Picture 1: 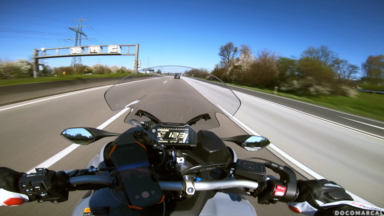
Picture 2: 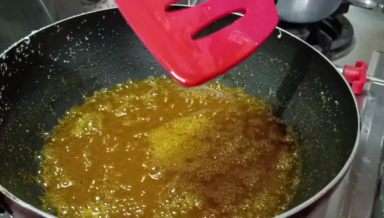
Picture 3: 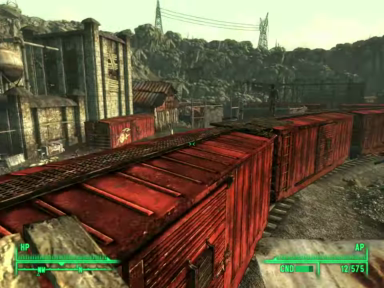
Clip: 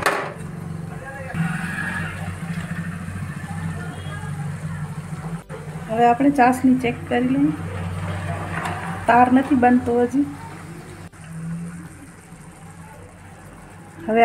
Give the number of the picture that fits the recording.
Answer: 2